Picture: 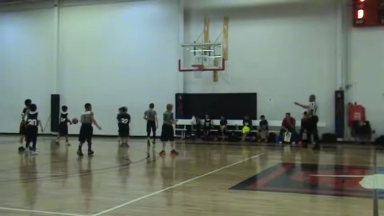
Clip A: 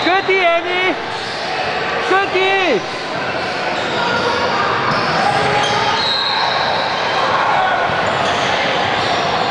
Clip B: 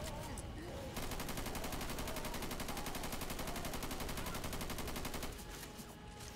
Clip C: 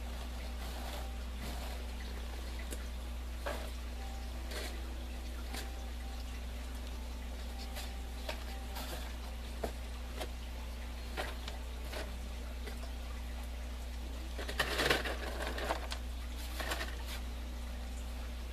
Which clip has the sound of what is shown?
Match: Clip A